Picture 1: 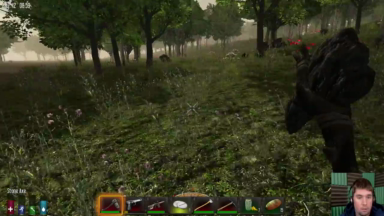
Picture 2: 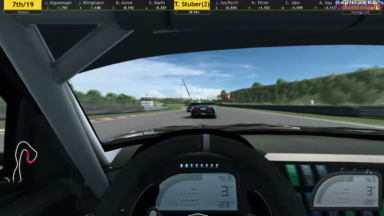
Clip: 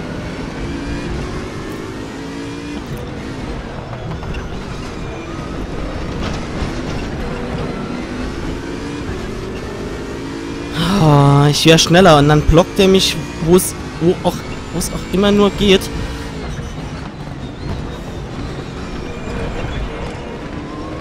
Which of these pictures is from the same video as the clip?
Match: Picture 2